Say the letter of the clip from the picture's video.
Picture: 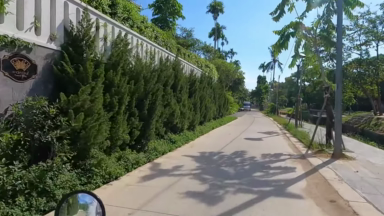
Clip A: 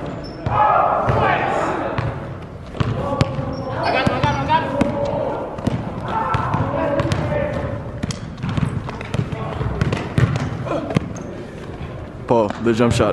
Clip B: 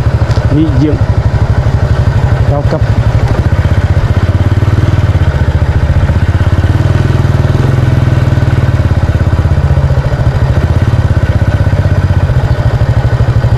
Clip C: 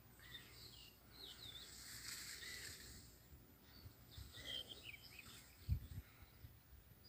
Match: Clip B